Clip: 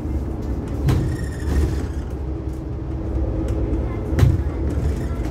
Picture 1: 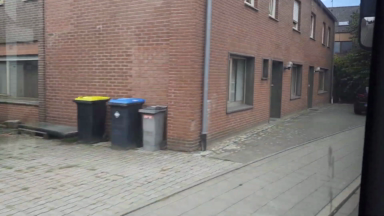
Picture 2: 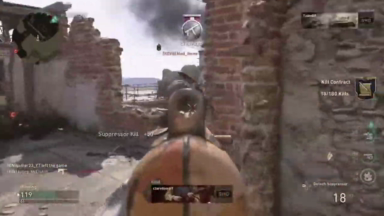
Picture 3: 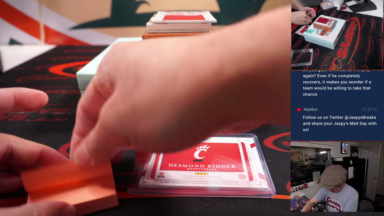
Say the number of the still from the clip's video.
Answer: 1